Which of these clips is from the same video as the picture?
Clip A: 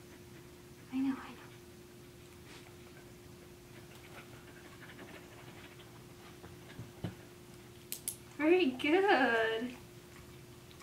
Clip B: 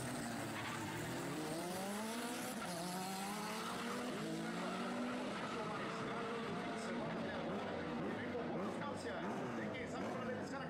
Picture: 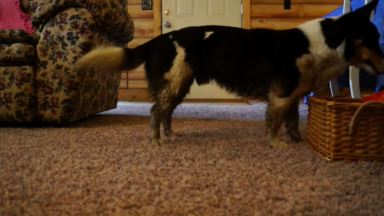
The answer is A